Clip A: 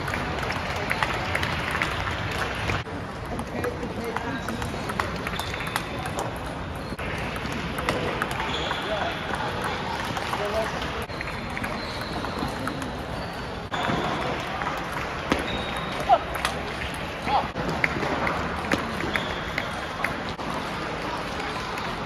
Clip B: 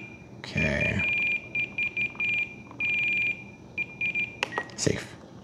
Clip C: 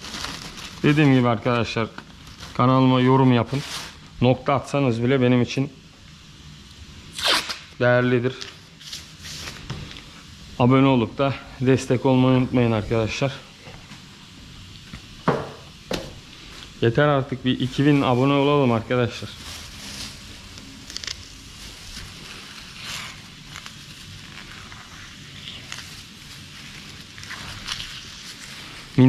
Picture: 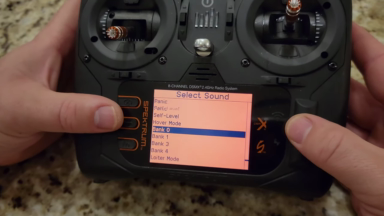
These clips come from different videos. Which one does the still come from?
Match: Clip B